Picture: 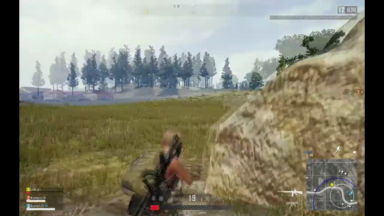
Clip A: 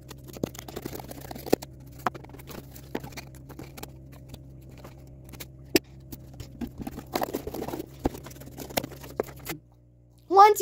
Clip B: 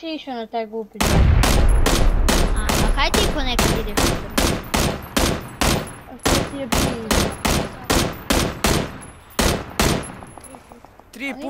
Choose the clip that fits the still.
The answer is B